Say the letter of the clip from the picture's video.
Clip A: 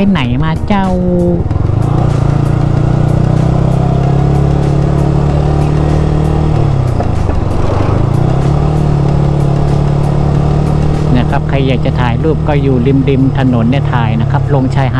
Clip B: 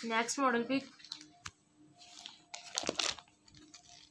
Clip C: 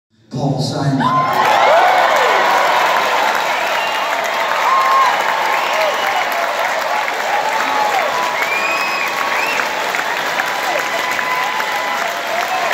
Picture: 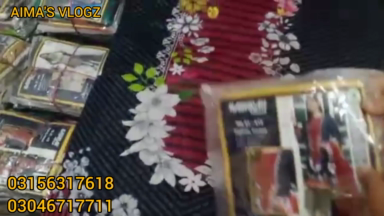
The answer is B